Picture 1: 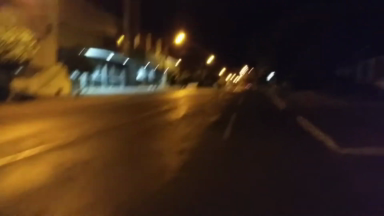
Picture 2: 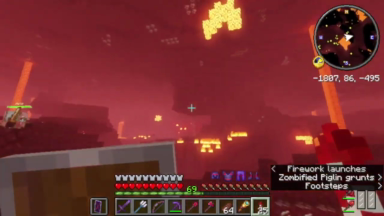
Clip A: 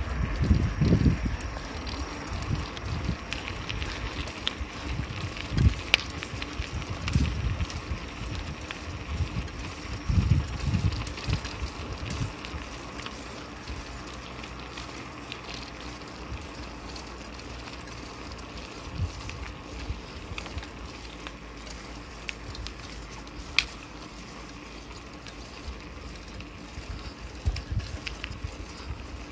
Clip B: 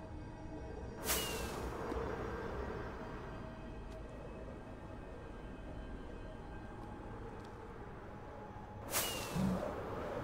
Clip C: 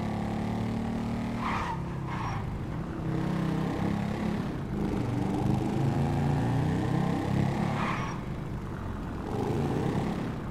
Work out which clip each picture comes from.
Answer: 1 A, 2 B